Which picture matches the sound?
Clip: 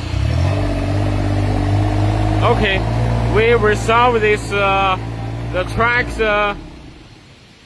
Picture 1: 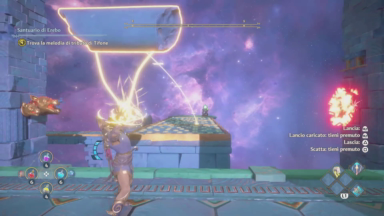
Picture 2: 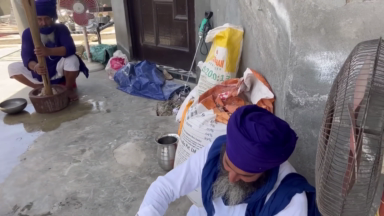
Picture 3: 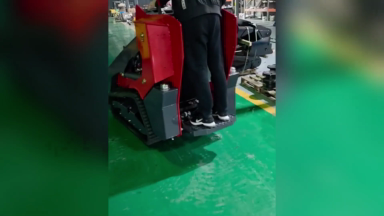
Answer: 3